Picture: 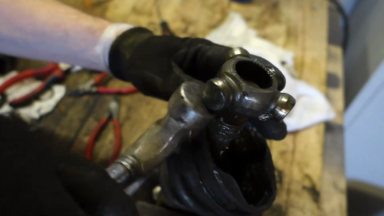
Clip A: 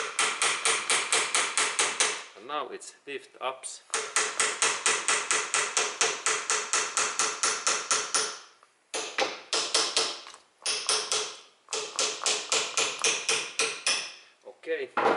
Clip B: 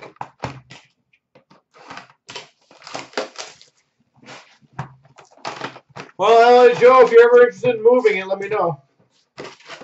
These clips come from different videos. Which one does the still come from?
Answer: A